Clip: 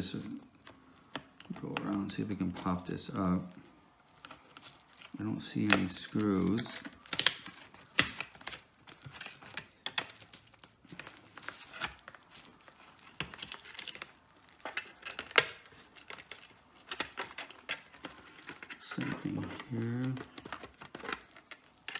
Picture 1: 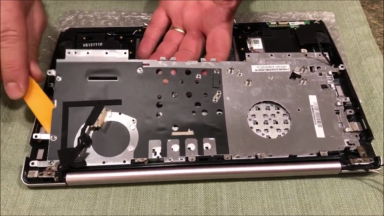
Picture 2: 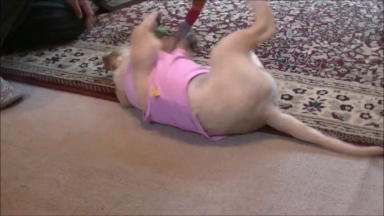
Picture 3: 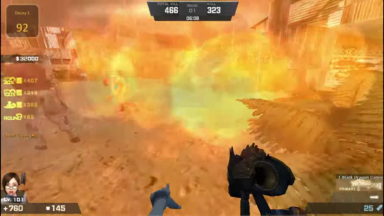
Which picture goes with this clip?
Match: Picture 1